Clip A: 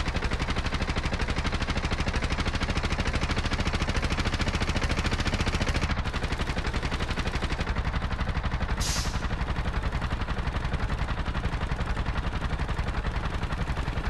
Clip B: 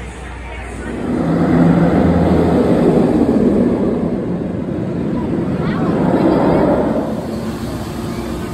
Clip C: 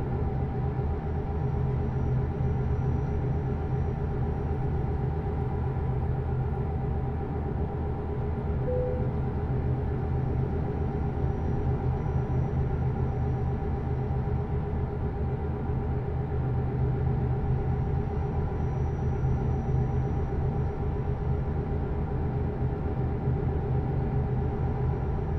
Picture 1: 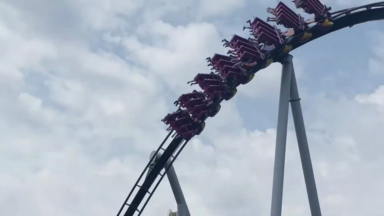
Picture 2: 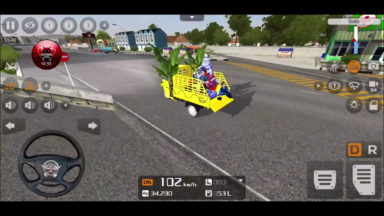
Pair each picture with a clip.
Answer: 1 B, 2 A